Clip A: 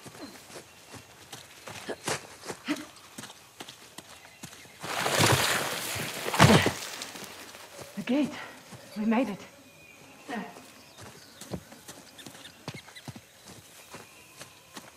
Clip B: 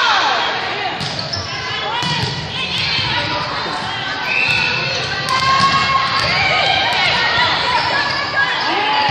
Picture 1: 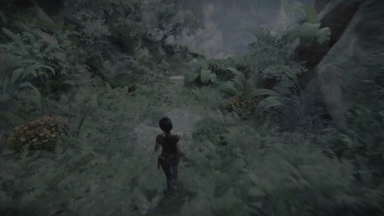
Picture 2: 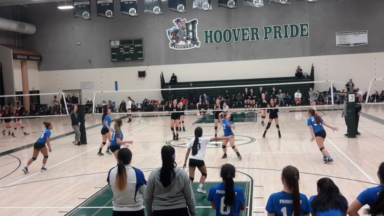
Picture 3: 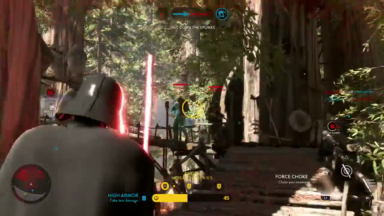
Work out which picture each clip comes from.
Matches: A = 1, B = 2